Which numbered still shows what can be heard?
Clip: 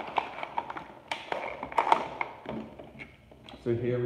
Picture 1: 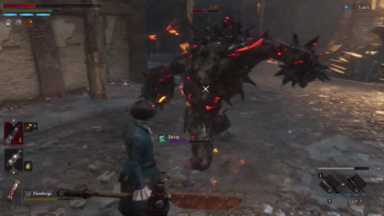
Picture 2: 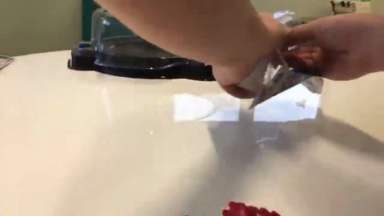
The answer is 2